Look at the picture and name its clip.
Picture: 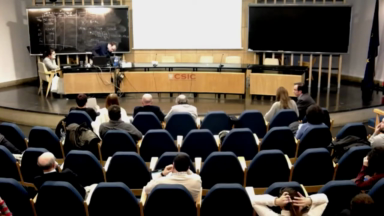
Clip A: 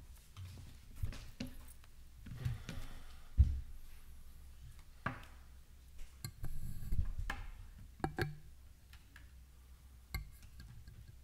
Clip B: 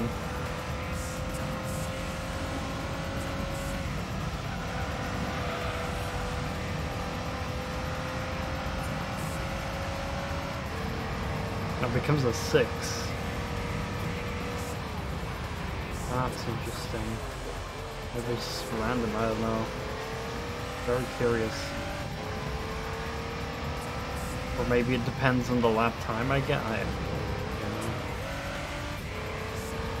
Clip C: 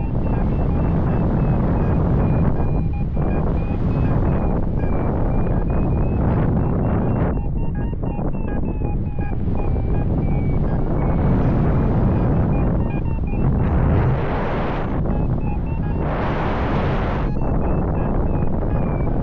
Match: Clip A